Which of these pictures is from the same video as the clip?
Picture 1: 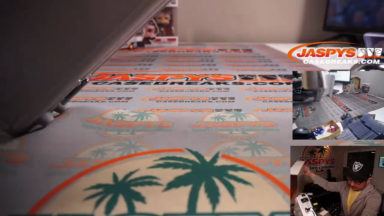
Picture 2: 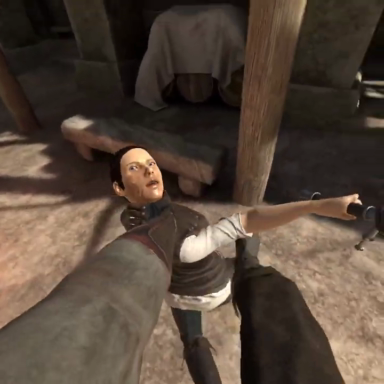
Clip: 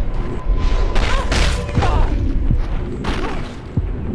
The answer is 2